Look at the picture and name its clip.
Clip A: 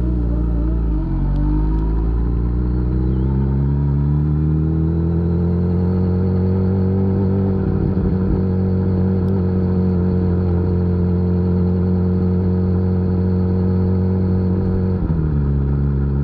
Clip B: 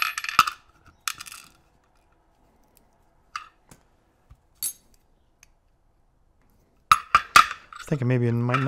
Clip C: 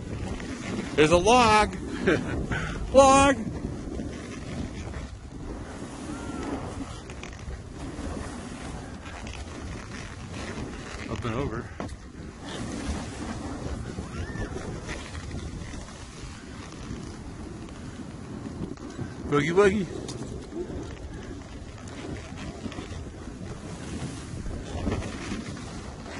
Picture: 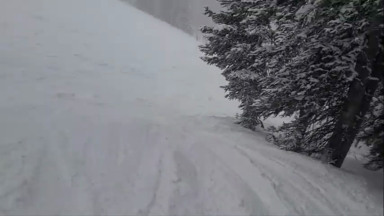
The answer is C